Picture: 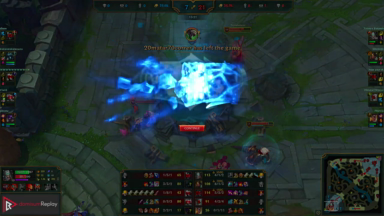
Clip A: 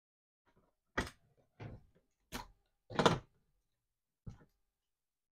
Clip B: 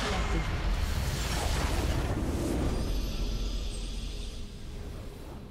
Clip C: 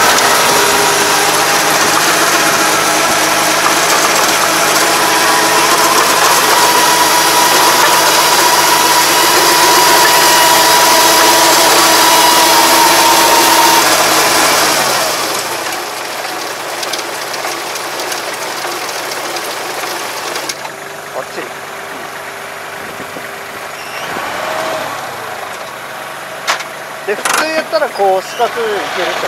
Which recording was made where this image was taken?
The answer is B